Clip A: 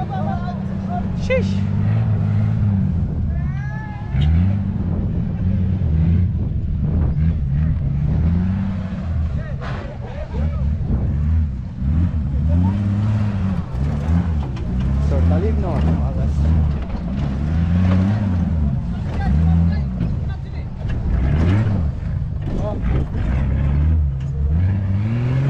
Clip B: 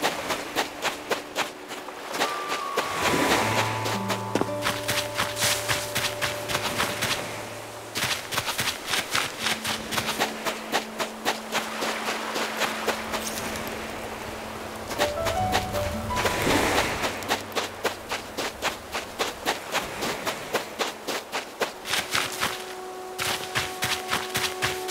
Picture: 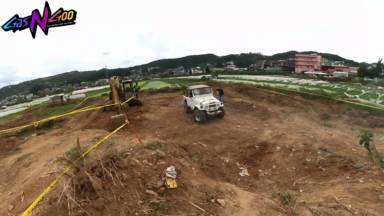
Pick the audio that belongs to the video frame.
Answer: A